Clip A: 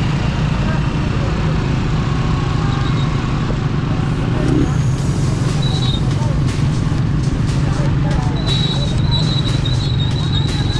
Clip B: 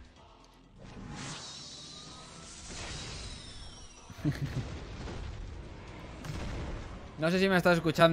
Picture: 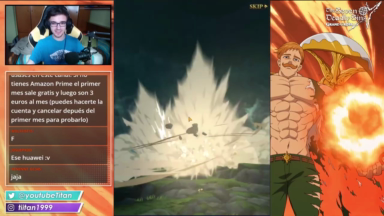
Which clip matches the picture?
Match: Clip B